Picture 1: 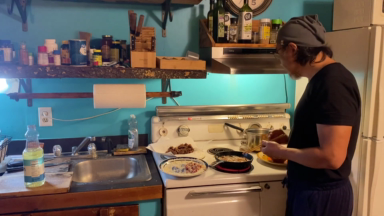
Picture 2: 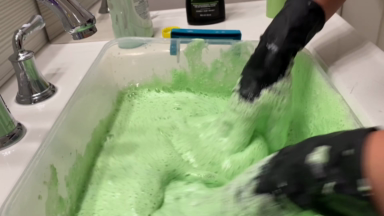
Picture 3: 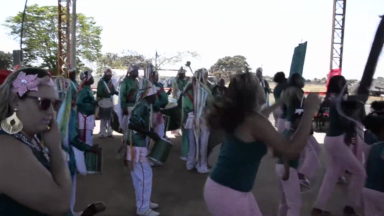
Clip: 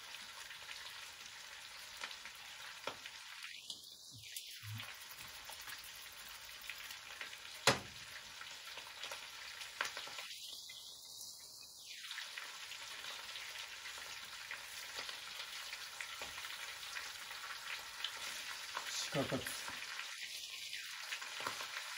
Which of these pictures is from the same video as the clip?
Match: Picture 1